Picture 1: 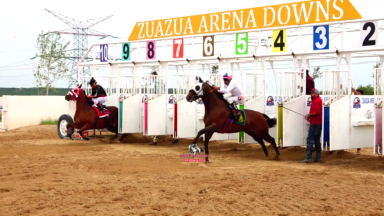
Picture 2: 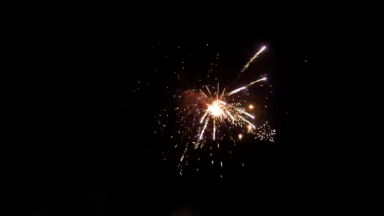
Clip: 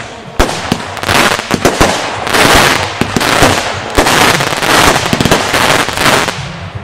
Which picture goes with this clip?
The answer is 2